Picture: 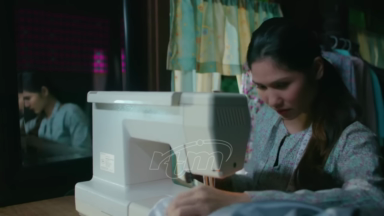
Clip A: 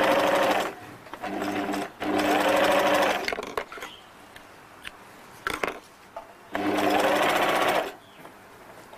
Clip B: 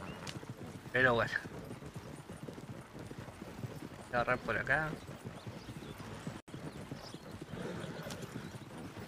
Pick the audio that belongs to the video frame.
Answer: A